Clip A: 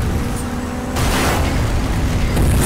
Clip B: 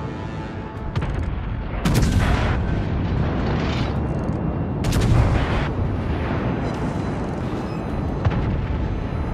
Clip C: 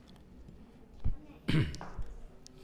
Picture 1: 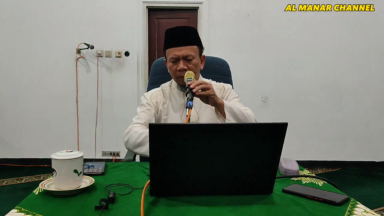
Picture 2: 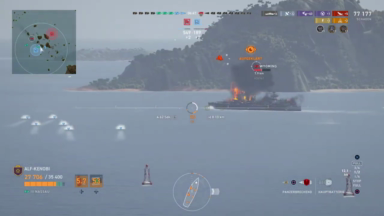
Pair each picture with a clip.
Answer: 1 C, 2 B